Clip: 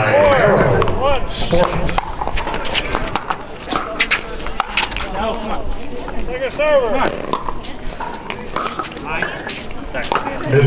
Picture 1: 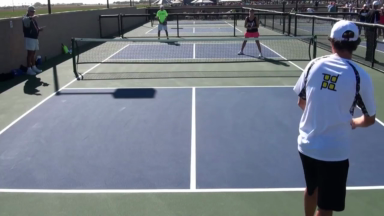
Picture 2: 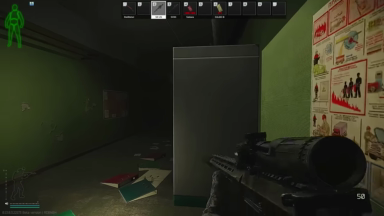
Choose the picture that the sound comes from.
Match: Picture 1